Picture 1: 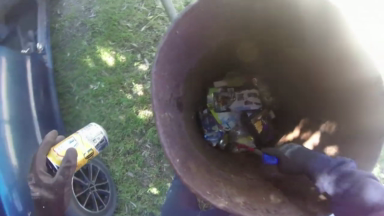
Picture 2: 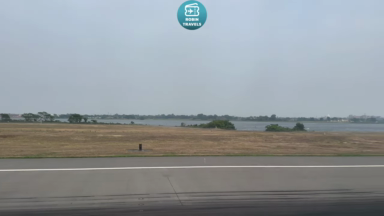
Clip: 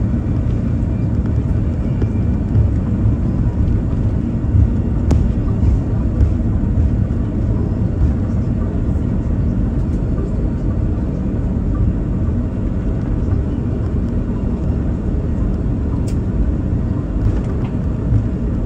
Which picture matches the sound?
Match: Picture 2